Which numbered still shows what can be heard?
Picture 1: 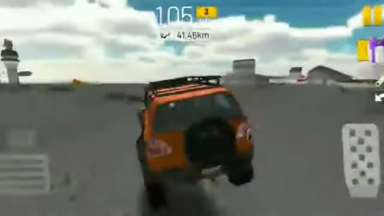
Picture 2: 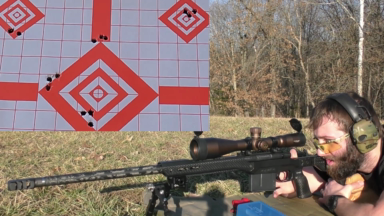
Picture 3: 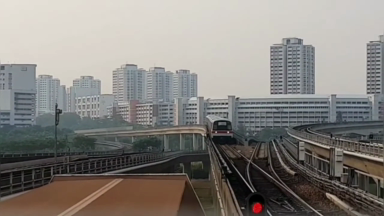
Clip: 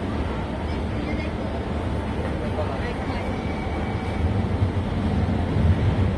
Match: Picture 3